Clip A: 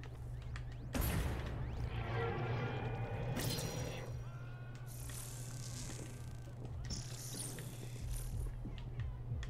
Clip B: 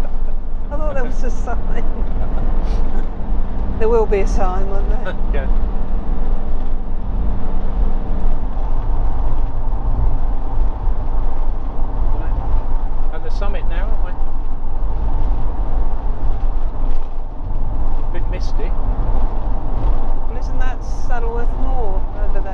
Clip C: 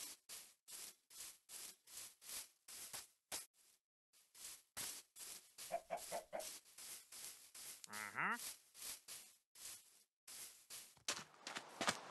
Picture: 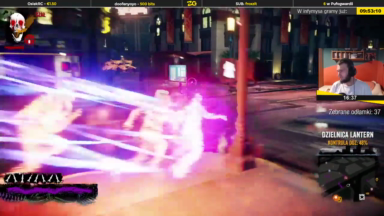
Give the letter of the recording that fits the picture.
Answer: A